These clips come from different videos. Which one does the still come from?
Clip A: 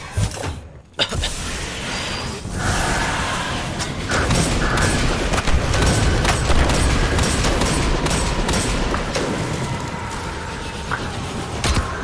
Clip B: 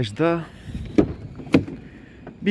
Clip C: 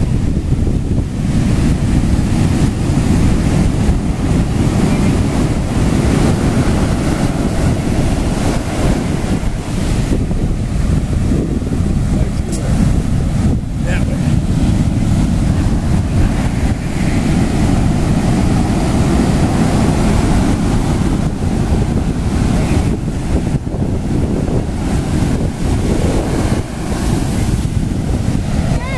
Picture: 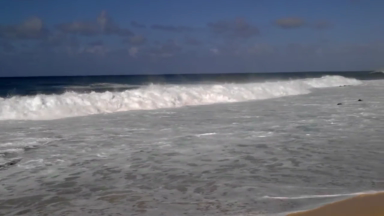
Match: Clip C